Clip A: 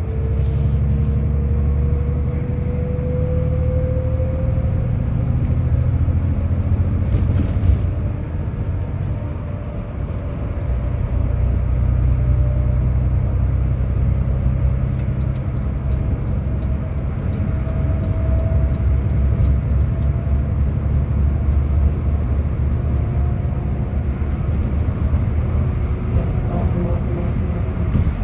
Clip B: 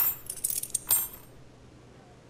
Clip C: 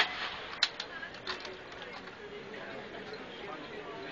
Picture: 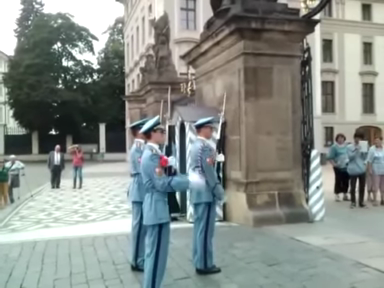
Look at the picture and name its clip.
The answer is C